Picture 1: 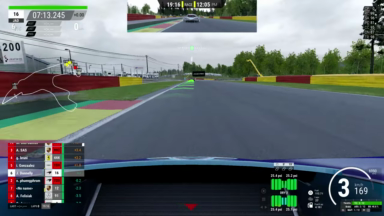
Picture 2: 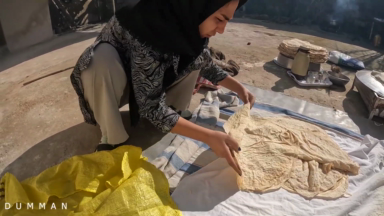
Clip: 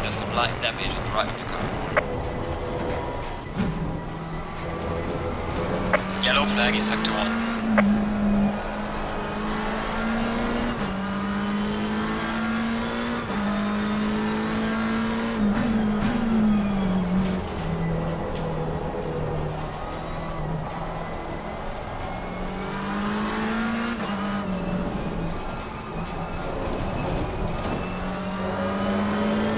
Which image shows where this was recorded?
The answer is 1